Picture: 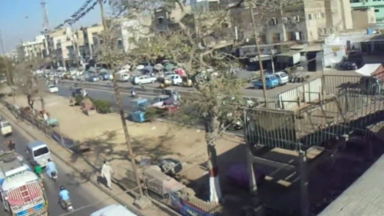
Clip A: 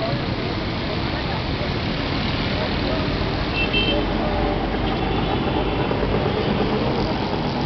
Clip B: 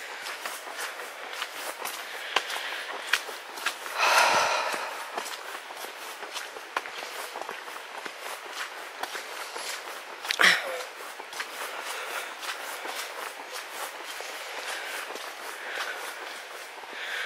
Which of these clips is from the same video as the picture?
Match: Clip A